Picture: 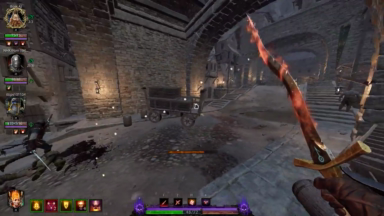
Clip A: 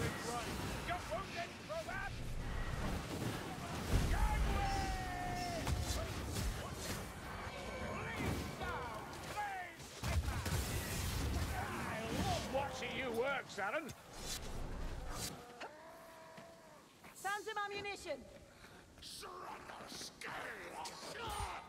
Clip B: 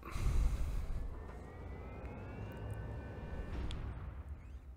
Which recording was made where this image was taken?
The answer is A